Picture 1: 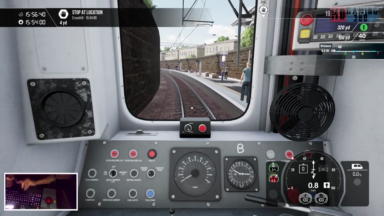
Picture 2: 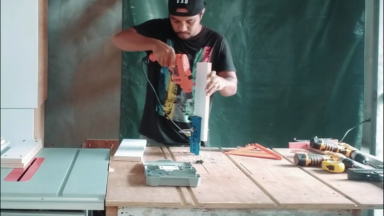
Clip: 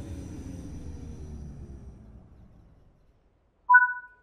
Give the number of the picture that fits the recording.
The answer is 1